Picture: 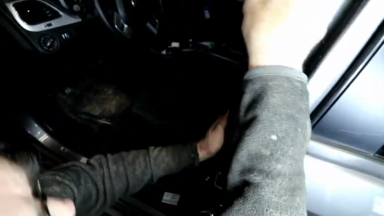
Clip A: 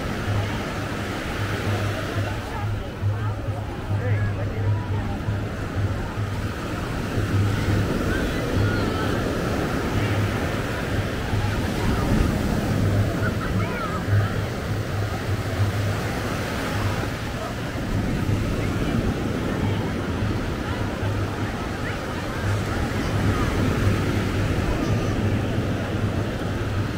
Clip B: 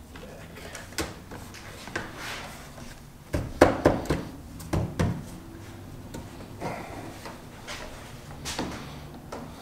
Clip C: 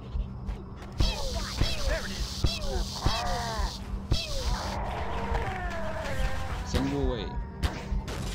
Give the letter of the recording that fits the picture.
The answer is B